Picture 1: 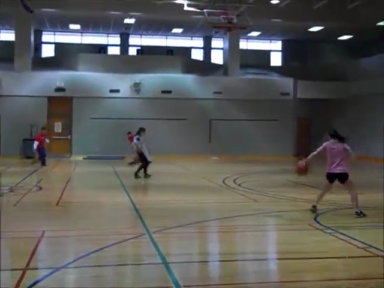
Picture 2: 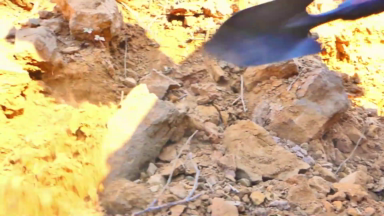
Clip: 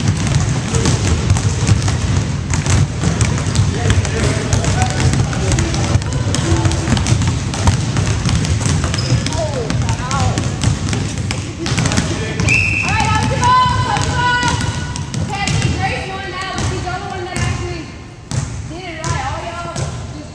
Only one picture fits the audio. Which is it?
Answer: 1